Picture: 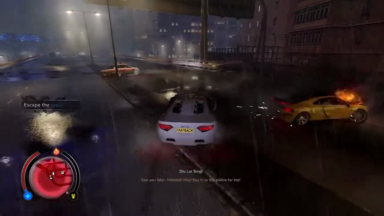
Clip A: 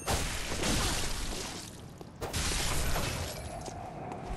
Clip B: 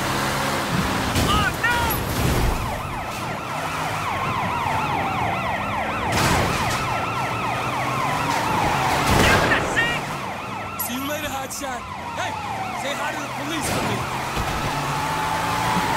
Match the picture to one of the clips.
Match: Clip B